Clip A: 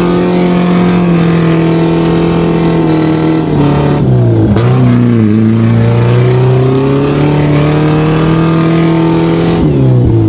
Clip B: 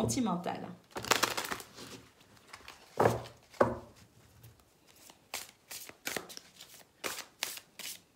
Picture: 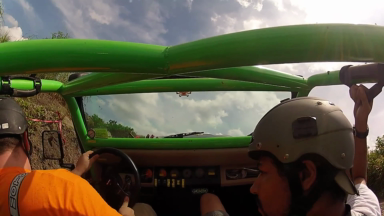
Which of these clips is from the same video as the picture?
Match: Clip A